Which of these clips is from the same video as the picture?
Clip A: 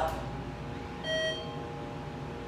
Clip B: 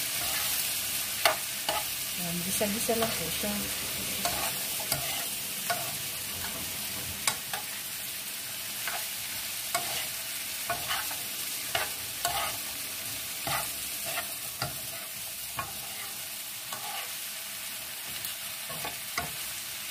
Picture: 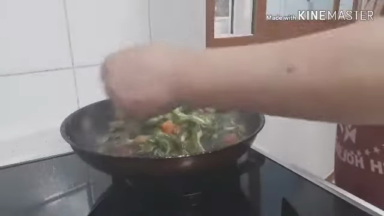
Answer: B